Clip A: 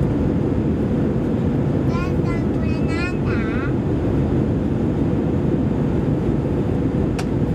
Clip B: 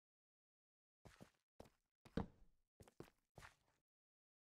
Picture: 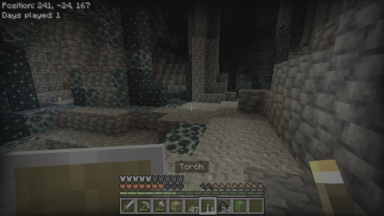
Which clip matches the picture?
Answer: B